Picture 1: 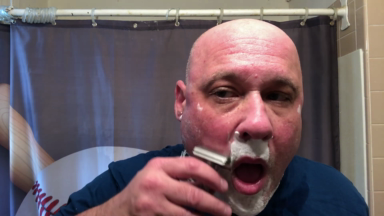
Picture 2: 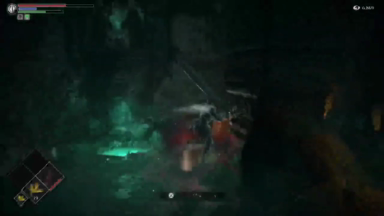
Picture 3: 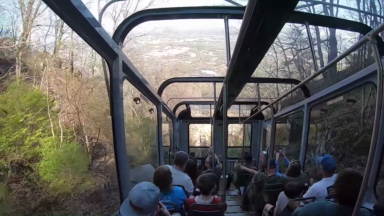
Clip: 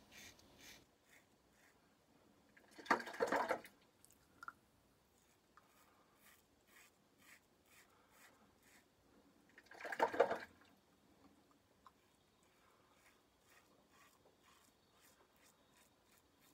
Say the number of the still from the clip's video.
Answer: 1